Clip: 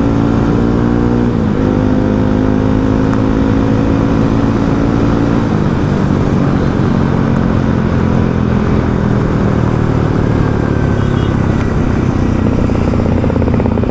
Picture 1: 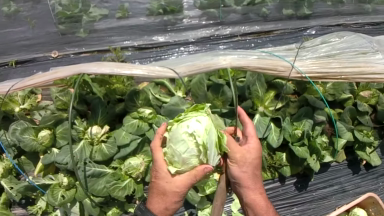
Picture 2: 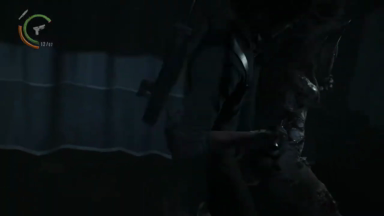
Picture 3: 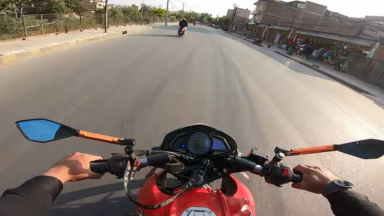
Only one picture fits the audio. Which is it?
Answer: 3